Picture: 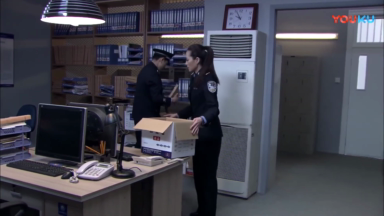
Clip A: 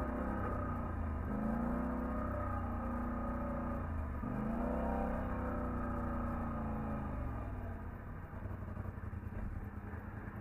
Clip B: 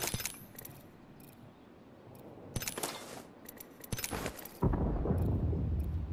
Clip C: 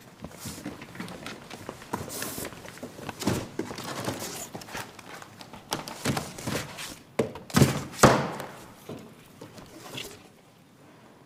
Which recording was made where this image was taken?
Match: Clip C